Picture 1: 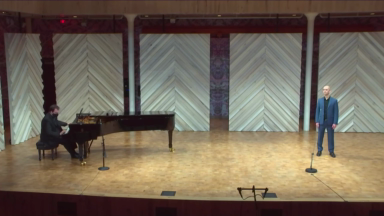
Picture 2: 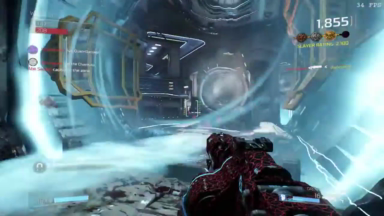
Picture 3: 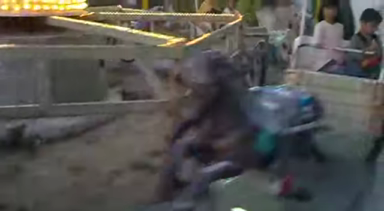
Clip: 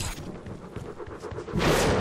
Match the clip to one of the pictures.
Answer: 2